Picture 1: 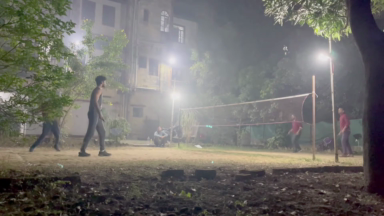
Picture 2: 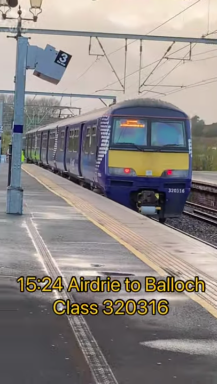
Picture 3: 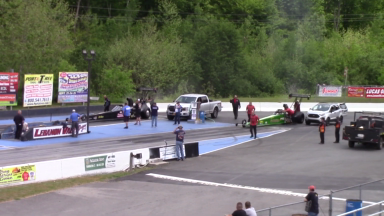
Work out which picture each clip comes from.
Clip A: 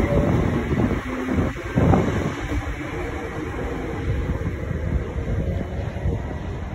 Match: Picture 2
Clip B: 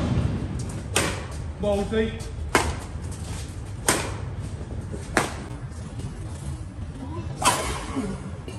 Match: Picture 1